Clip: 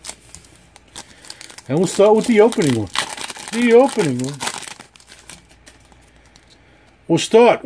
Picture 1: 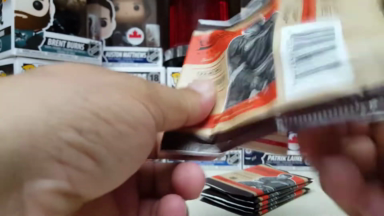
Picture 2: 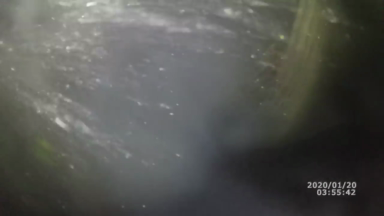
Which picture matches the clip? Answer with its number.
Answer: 1